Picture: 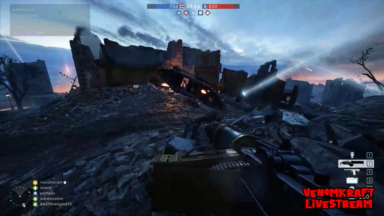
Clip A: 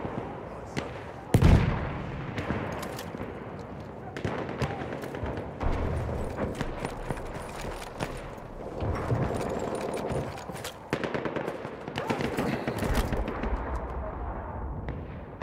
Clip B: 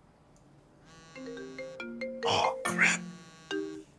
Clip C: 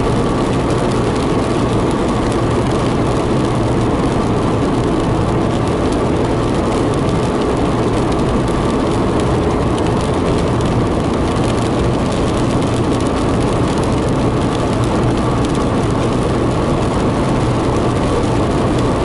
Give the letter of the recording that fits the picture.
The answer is A